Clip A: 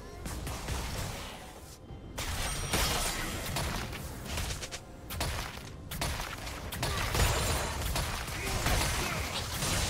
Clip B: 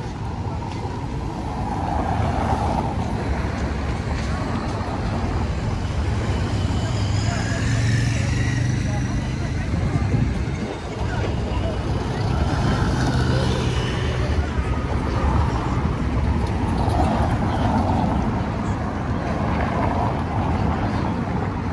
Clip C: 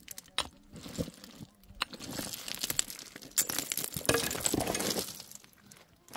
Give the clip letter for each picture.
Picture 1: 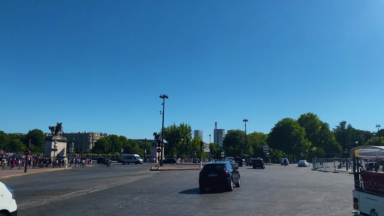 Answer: B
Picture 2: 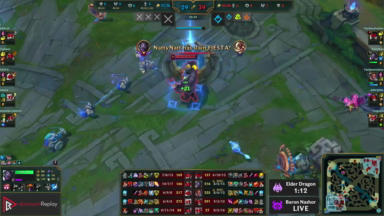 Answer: A